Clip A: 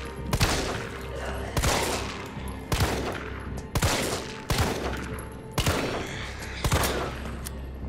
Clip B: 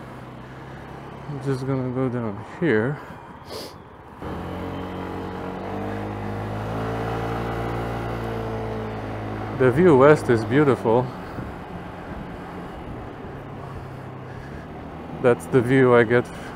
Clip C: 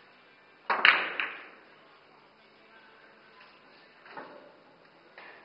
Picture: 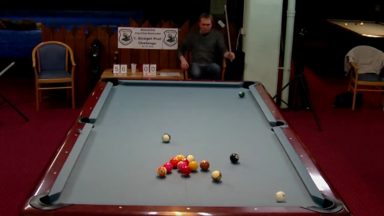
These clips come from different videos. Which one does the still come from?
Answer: C